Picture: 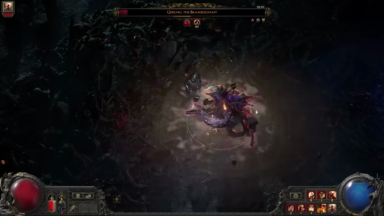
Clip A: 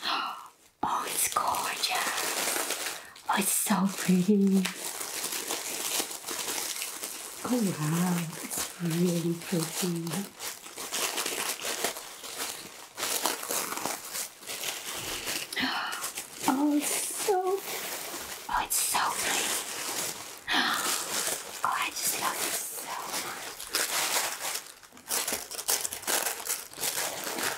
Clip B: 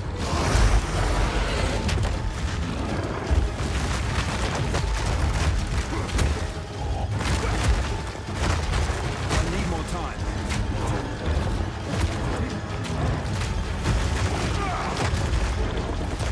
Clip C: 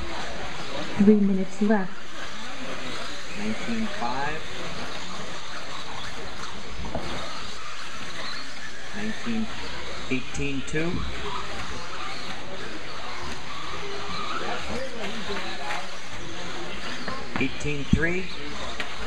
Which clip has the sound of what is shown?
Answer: B